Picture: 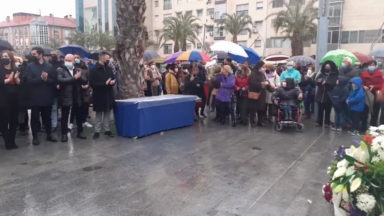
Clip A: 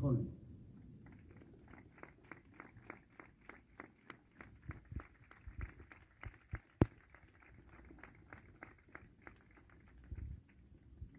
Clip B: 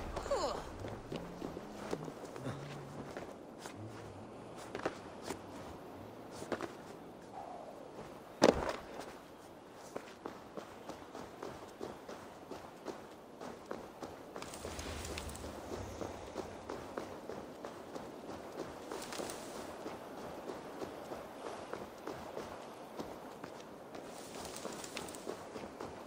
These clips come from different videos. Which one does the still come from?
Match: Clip A